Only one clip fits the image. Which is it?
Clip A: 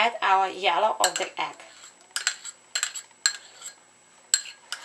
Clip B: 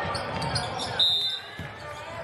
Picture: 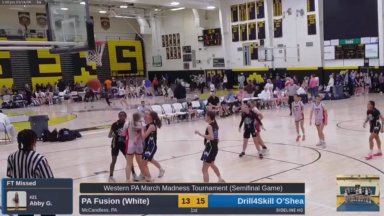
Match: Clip B